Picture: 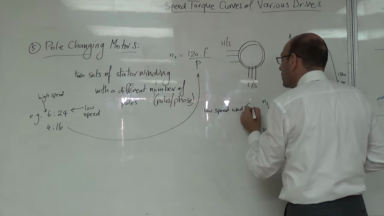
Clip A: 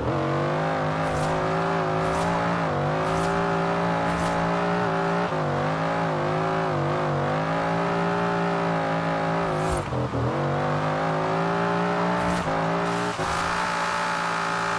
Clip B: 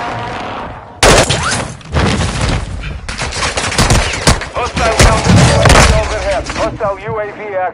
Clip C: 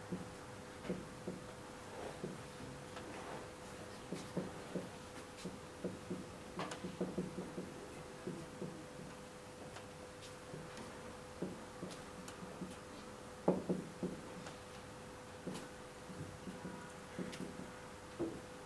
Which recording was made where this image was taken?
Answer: C